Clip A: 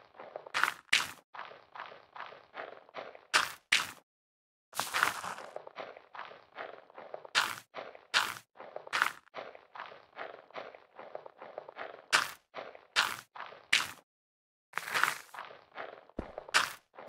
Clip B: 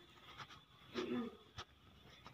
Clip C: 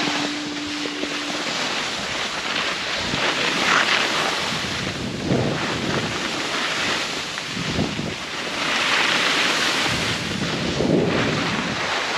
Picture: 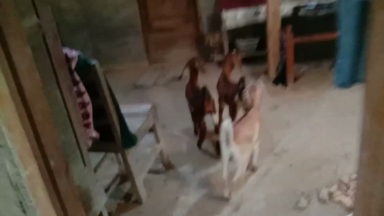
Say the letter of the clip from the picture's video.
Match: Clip B